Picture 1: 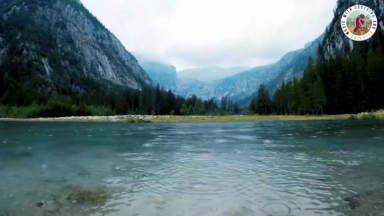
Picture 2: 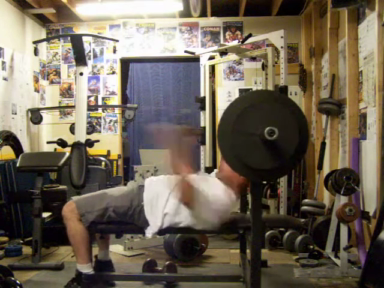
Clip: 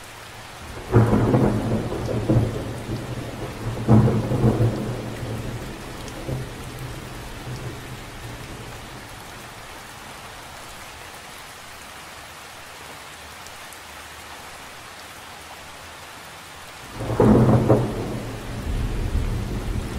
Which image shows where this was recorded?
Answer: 1